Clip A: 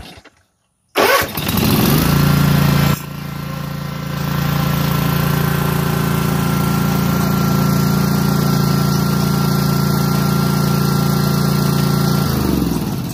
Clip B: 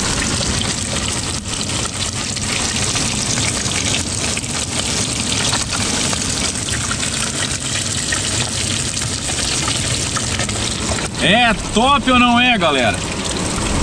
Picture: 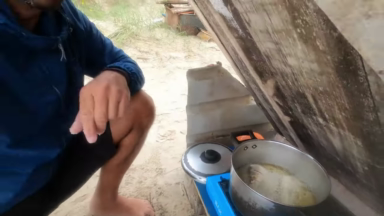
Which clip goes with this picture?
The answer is B